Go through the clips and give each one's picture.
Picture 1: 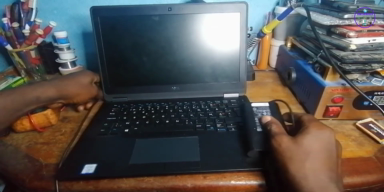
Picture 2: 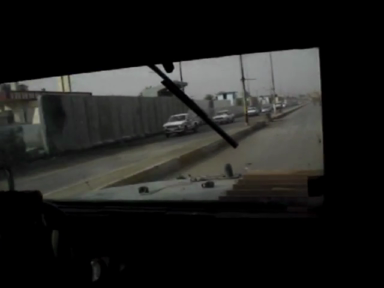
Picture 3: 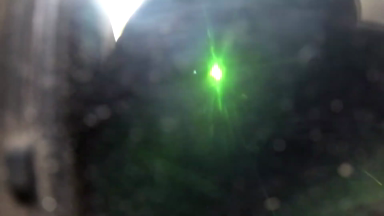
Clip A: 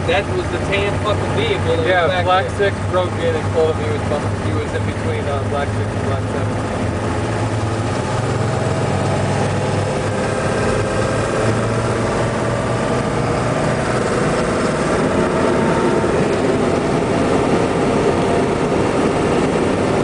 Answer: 2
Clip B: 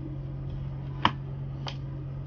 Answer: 1